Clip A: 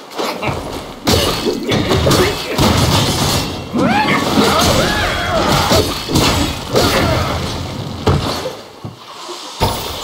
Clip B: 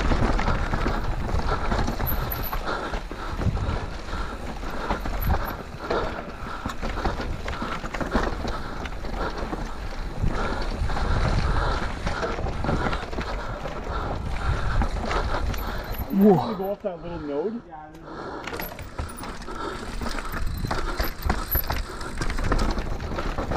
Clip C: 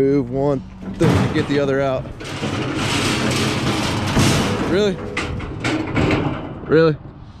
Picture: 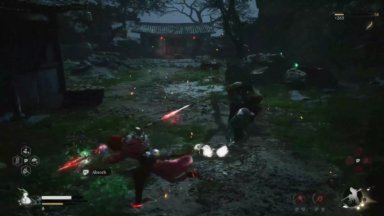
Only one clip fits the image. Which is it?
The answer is A